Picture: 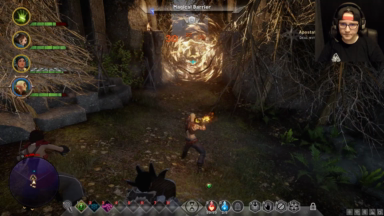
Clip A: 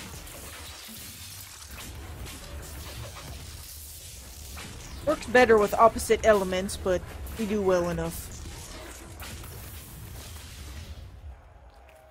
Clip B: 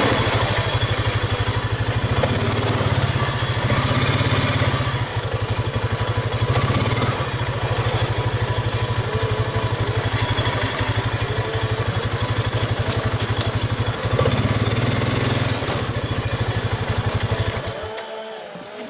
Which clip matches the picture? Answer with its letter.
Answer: A